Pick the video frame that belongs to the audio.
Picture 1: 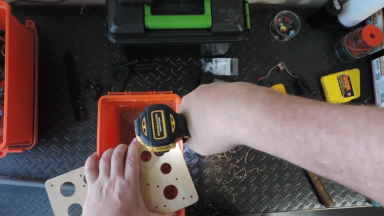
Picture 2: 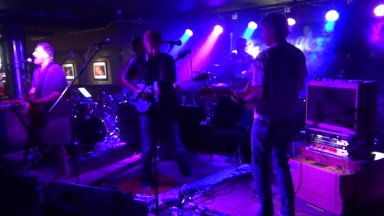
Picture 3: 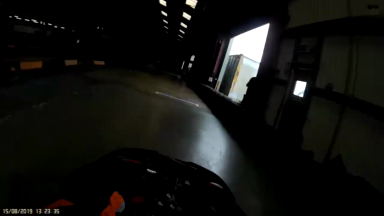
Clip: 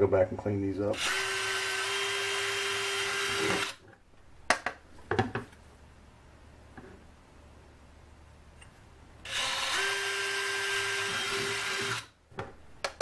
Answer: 1